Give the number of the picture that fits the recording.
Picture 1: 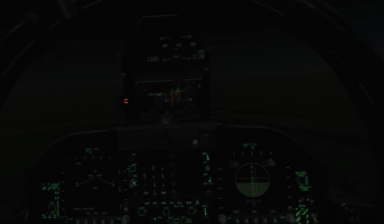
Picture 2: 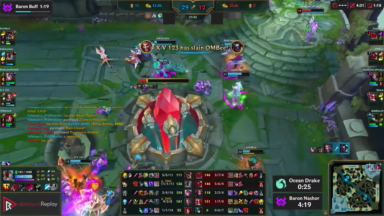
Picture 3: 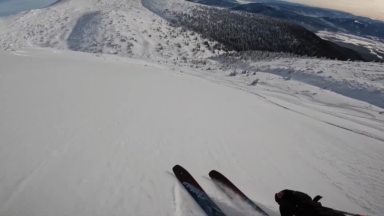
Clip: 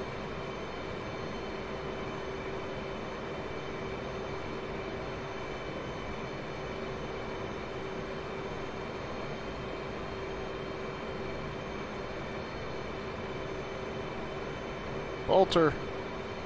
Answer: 1